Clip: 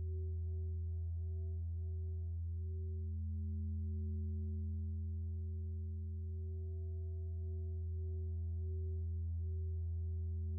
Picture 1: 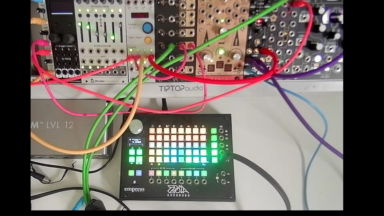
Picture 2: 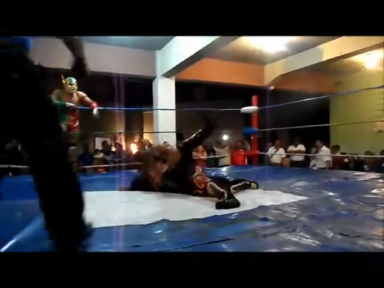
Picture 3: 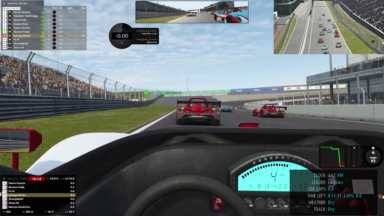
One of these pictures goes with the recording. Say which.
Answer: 1